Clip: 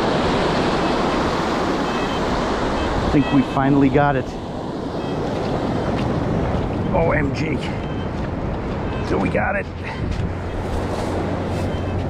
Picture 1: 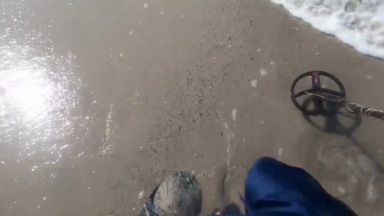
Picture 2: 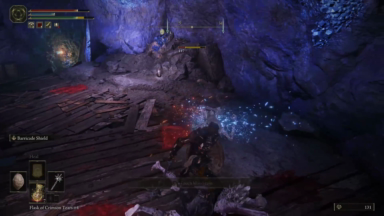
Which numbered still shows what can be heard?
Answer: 1